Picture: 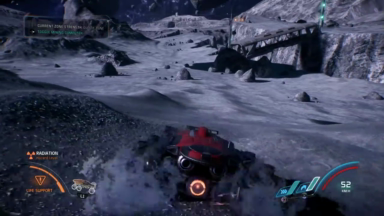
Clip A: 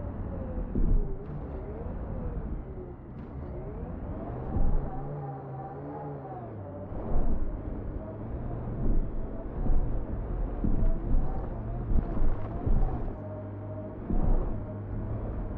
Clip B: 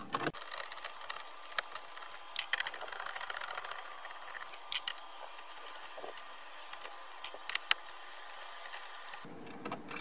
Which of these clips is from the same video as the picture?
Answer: A